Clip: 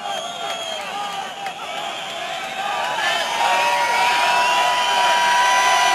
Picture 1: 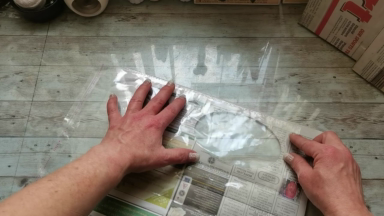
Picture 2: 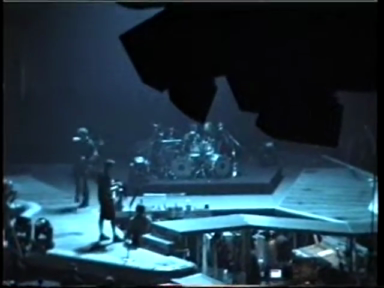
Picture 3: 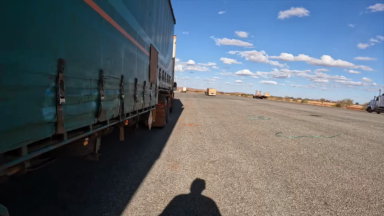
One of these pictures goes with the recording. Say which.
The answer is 2